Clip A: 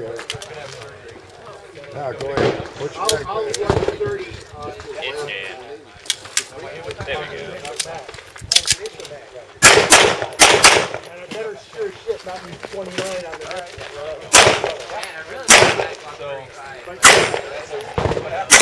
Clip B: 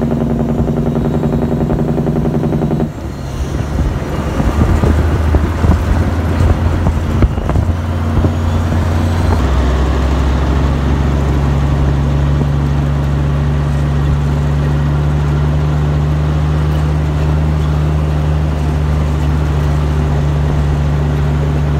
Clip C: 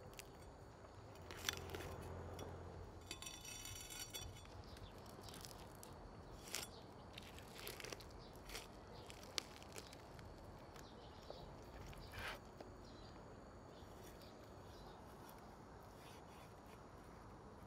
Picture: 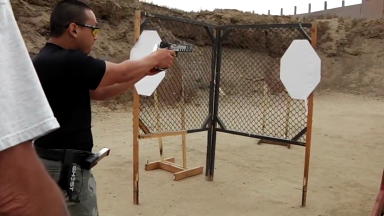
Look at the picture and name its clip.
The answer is A